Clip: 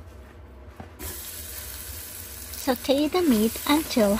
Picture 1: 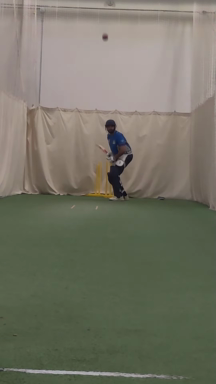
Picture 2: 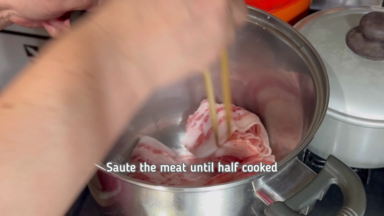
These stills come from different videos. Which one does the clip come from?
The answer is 2